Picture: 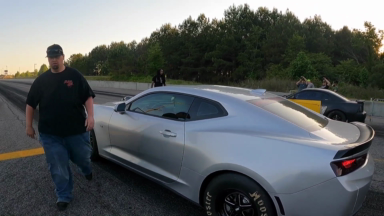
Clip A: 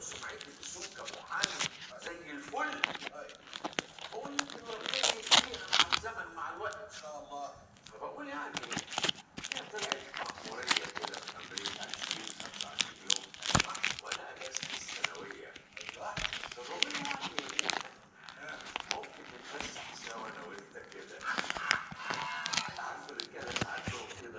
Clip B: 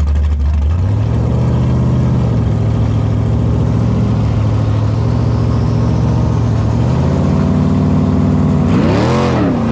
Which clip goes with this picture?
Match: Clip B